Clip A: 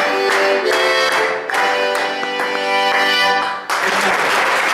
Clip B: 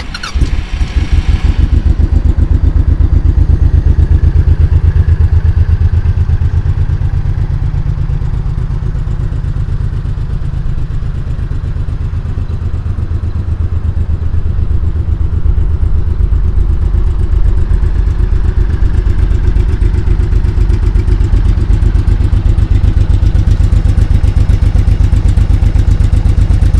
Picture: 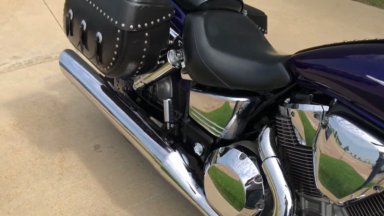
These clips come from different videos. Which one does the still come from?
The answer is B